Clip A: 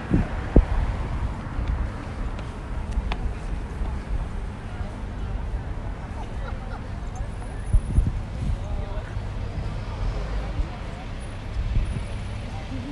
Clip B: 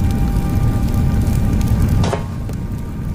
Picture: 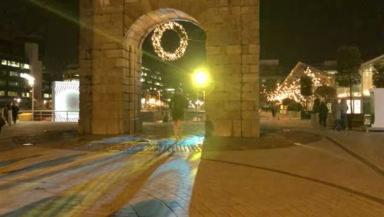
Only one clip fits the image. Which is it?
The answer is A